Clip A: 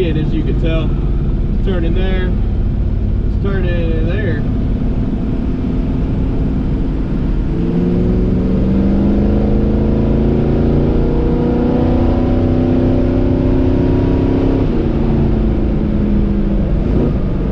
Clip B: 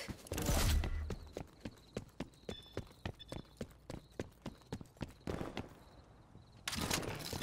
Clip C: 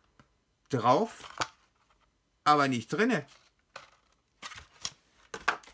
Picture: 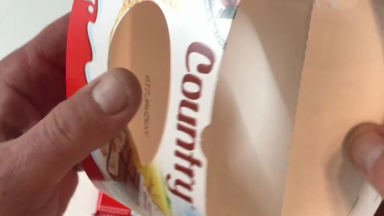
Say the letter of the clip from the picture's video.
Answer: C